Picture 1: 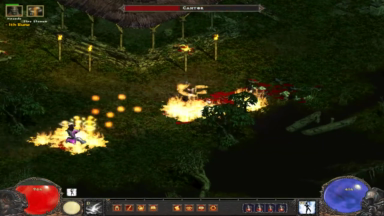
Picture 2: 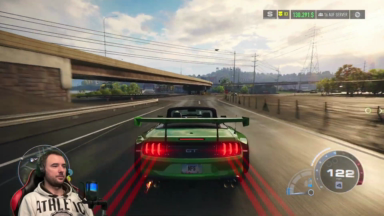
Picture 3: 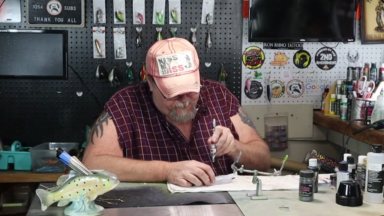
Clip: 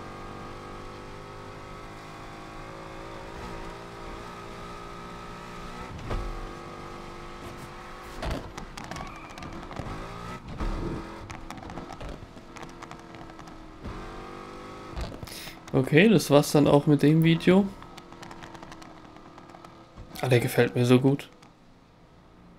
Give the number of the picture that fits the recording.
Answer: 2